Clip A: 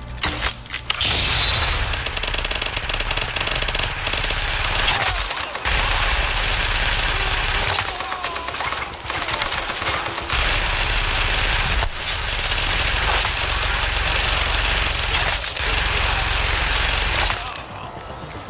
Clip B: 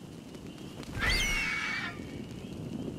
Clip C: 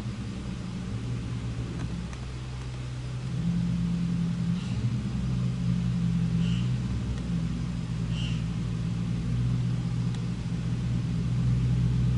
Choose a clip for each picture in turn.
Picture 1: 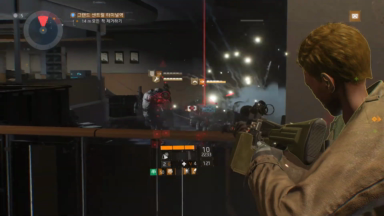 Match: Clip A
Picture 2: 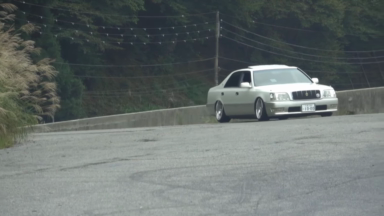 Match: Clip C